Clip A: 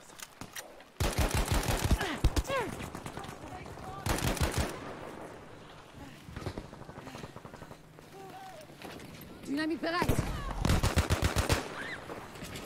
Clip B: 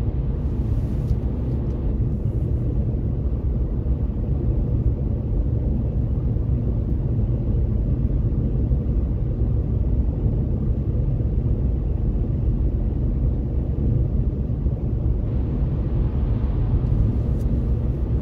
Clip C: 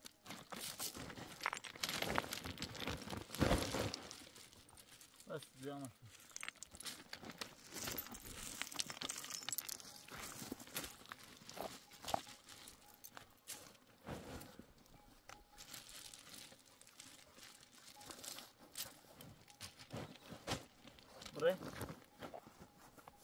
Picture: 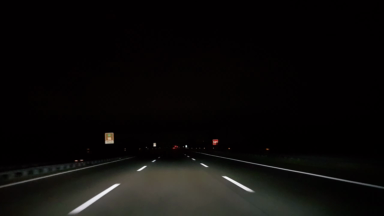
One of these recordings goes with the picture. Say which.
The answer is B